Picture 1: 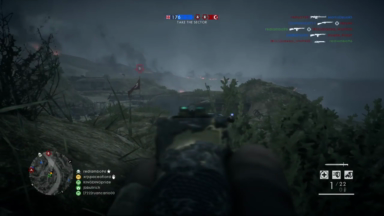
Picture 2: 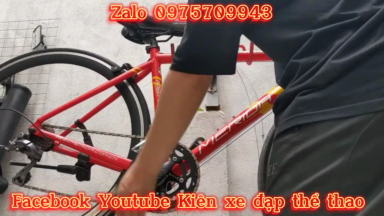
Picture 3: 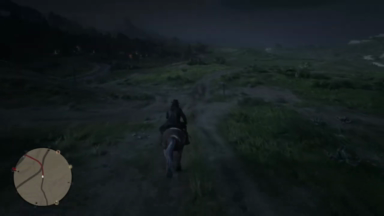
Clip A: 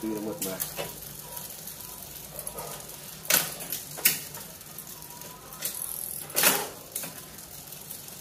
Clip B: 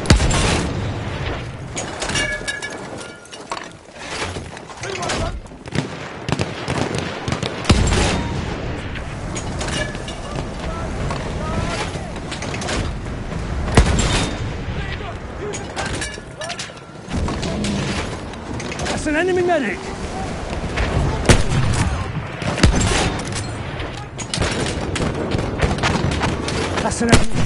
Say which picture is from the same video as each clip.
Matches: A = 2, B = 1